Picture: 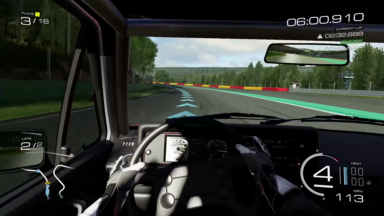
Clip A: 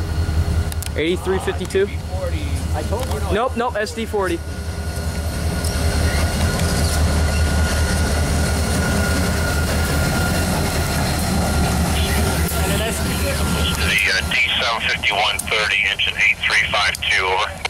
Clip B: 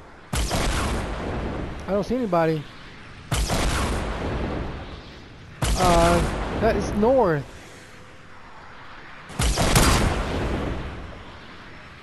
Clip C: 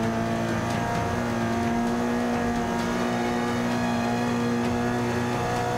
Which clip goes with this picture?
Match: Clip C